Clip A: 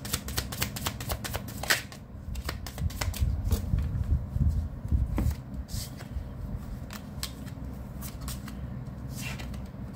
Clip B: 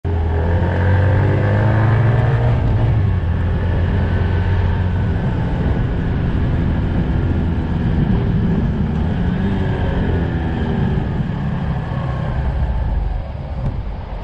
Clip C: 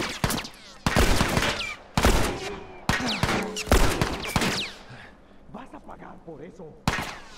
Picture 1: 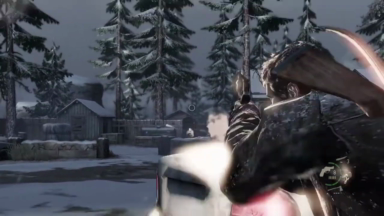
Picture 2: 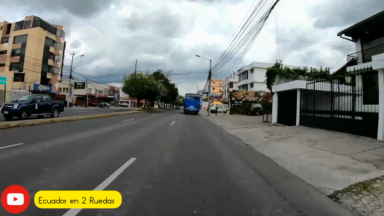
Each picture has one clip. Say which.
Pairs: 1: C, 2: B